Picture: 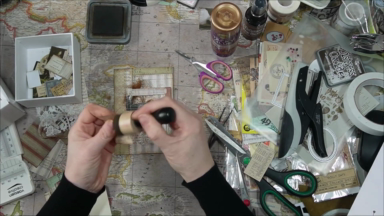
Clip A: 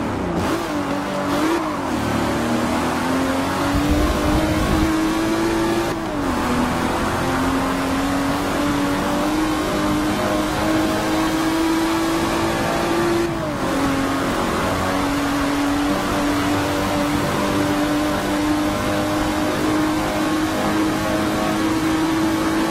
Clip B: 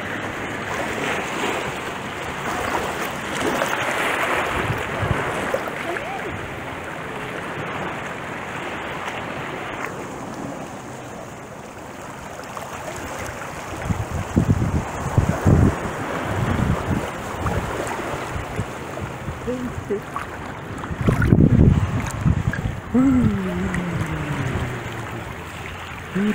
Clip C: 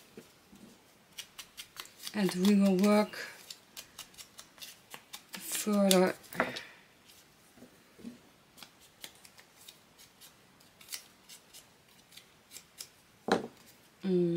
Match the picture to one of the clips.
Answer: C